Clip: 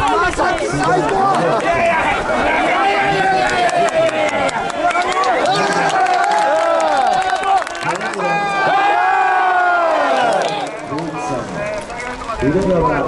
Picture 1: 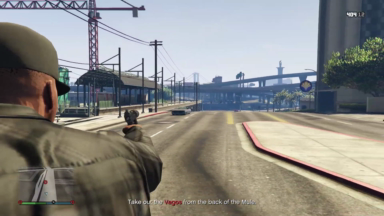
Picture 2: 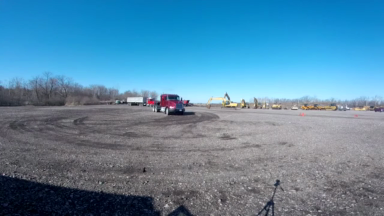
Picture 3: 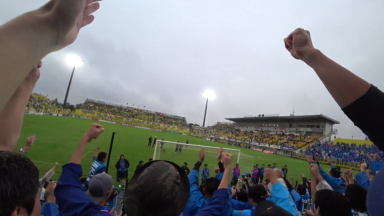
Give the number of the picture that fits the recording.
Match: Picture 3